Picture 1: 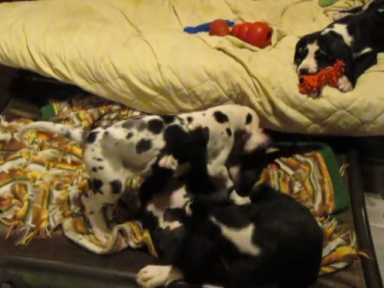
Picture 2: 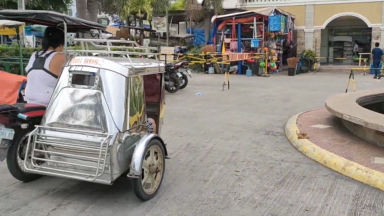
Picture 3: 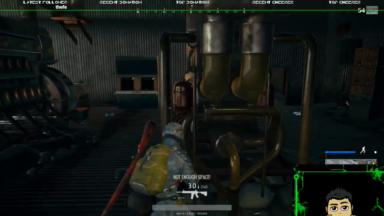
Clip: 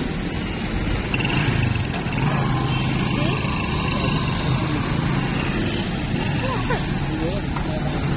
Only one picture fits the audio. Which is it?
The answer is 2